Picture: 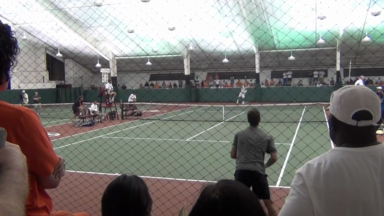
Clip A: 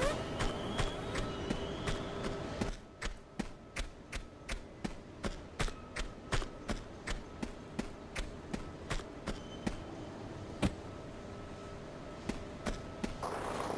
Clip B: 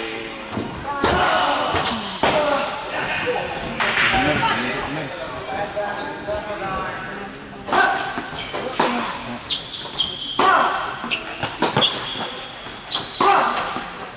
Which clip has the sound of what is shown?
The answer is B